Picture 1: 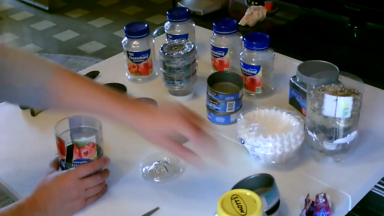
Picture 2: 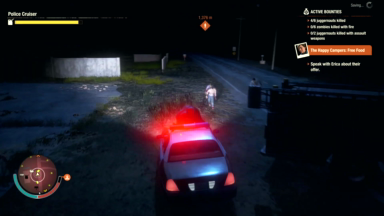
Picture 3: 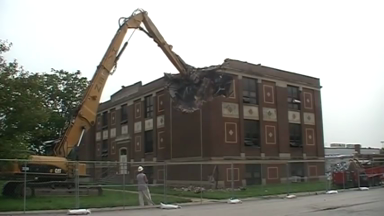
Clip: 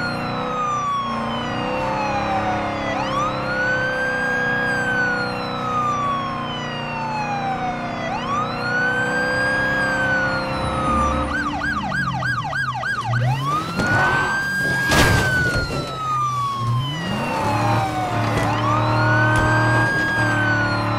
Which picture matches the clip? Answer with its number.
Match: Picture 2